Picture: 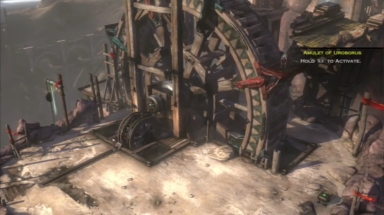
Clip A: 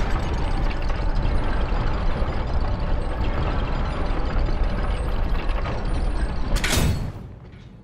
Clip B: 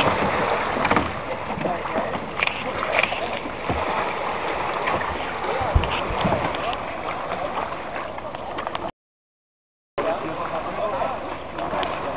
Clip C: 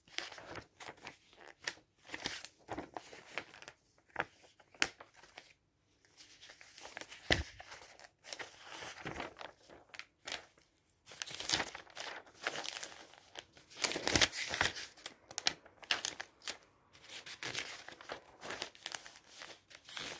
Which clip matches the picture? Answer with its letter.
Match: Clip A